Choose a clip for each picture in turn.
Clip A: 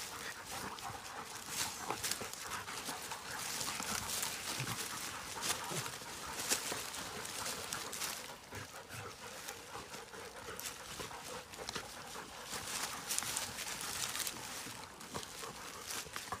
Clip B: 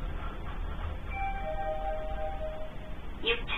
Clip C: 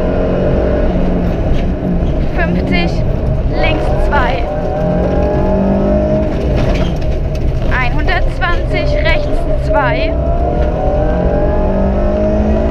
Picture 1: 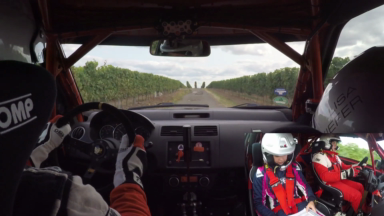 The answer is C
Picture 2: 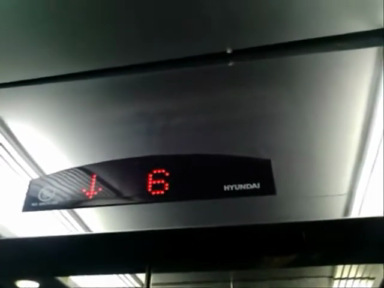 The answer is B